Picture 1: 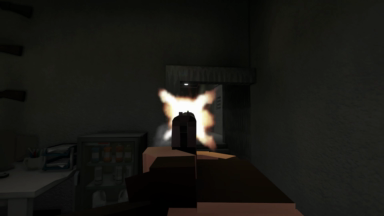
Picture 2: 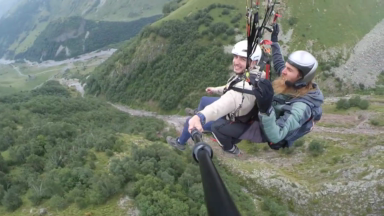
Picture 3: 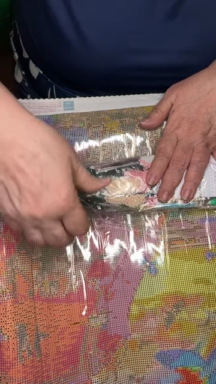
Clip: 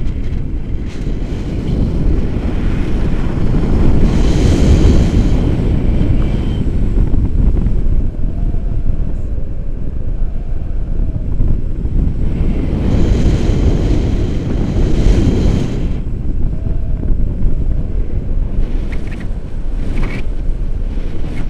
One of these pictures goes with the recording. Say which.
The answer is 2